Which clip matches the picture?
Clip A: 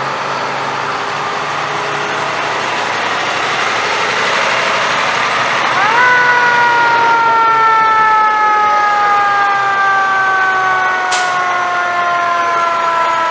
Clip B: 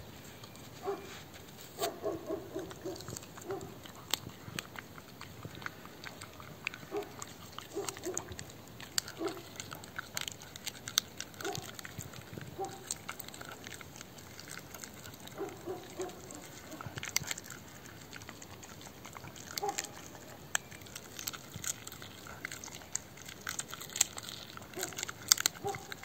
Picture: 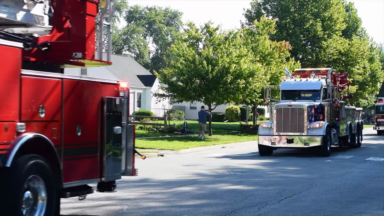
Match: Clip A